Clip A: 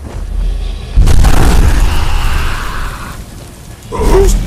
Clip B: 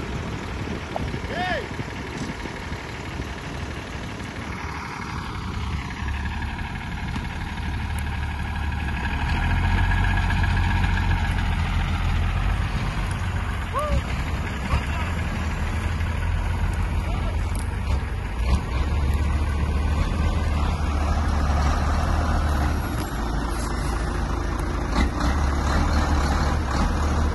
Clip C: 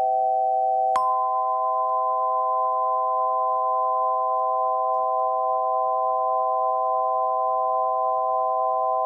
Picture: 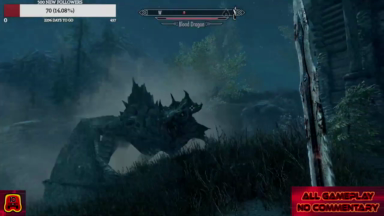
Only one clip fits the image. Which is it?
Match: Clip A